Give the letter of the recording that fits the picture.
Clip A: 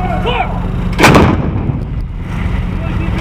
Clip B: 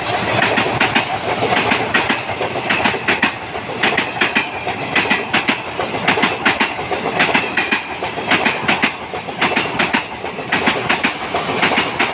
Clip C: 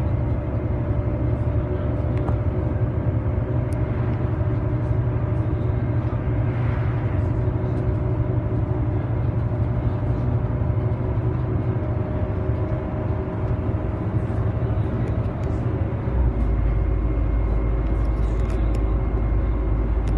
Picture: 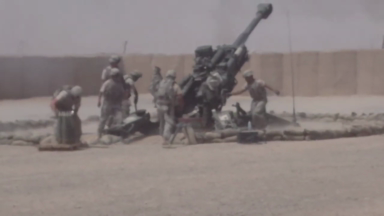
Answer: A